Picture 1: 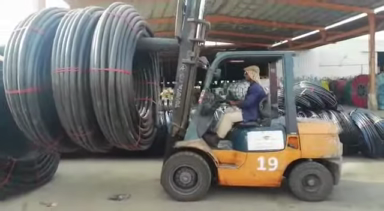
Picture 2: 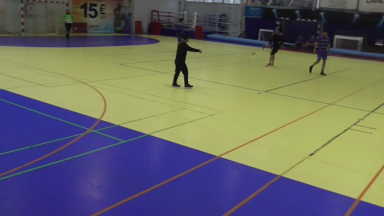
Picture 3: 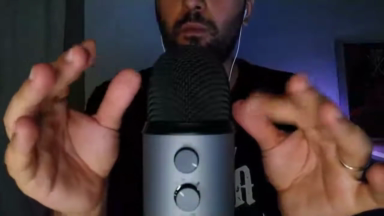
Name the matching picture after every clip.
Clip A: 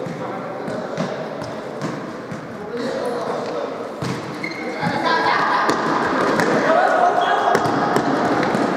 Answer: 2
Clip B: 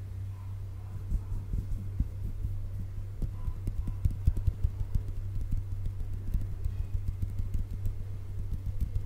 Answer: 3